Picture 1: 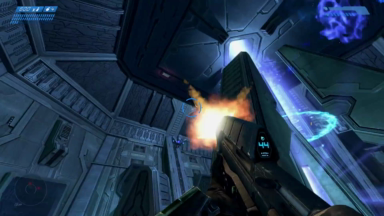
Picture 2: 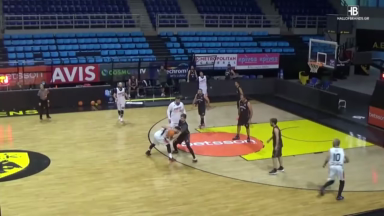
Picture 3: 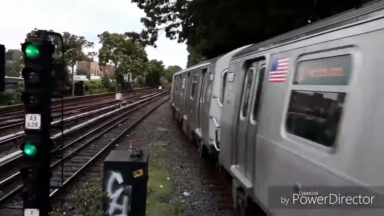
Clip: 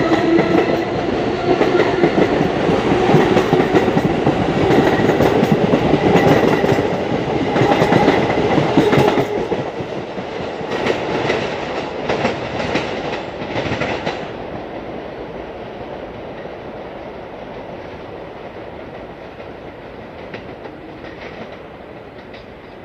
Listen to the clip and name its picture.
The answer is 3